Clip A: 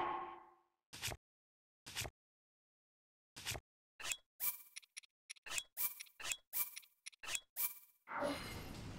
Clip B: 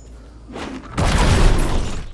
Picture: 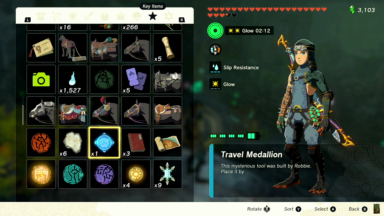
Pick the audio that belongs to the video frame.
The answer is A